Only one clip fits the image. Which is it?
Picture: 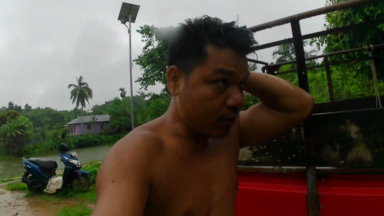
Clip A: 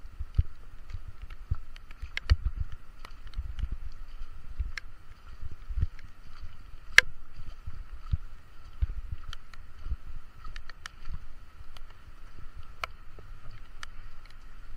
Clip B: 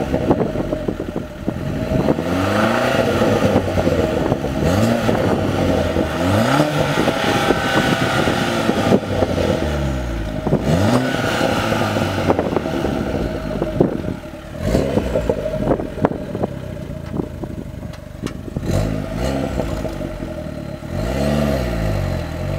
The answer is A